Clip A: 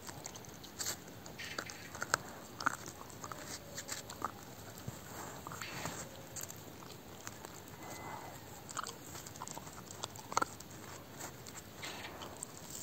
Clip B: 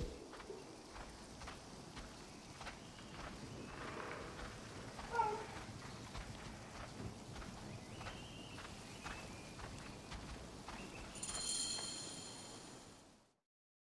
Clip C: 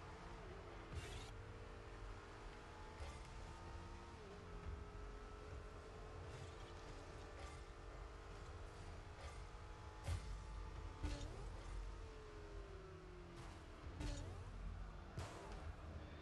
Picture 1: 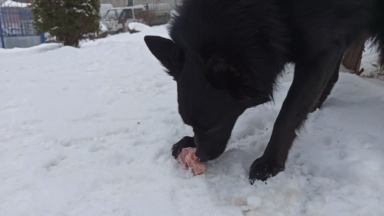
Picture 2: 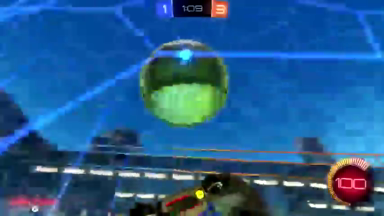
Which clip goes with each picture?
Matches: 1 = A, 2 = C